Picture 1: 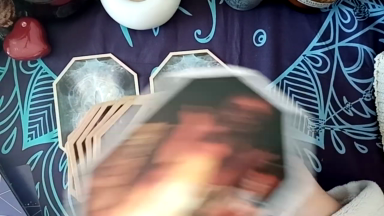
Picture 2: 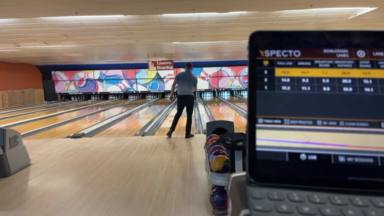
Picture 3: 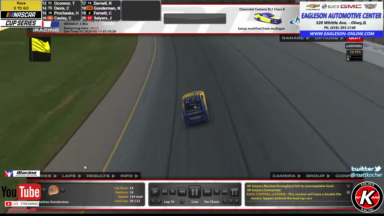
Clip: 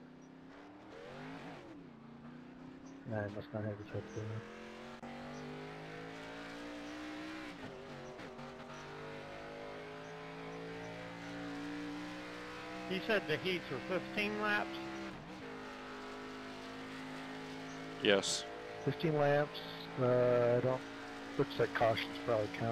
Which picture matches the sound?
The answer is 3